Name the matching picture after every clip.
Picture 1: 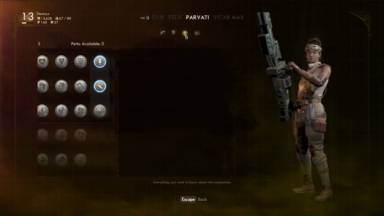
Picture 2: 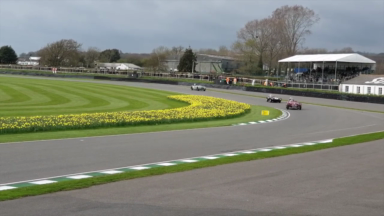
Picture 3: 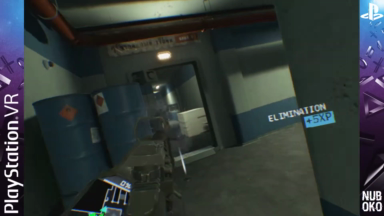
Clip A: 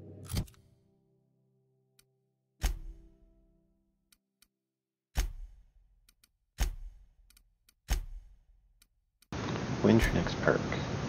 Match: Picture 1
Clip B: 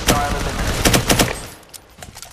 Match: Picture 3